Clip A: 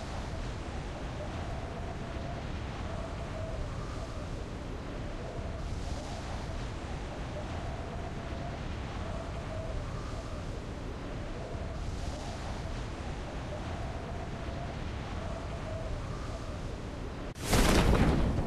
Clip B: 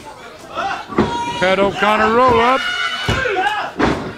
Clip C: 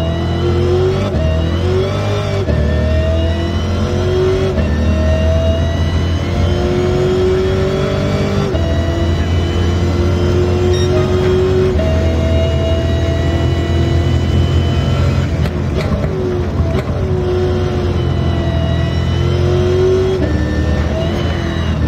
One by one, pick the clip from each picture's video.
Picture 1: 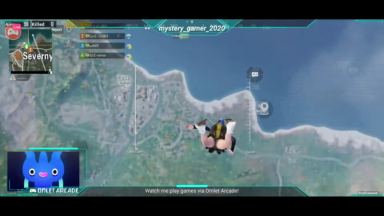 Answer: A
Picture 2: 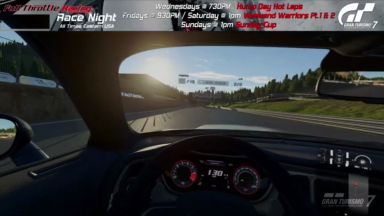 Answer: C